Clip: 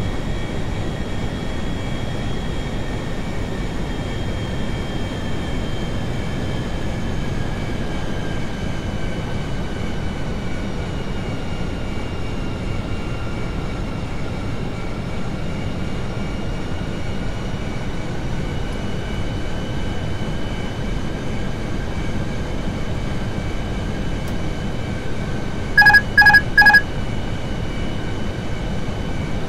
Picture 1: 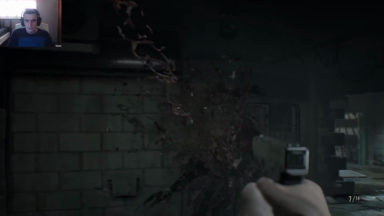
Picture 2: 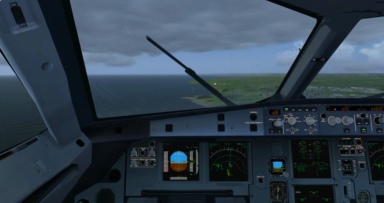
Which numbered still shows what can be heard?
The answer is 2